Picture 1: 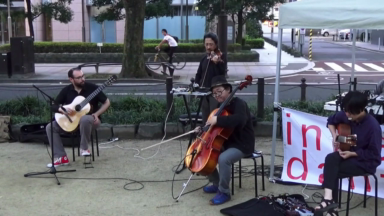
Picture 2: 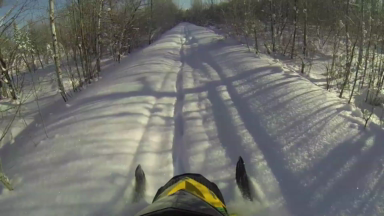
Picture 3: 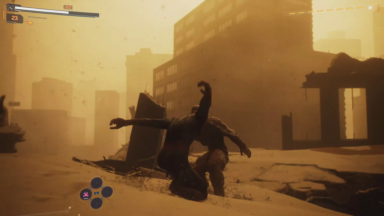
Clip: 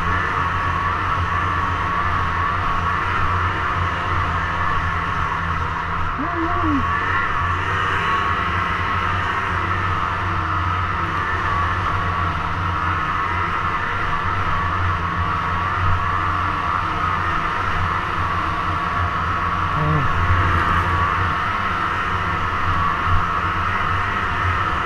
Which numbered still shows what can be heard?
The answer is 2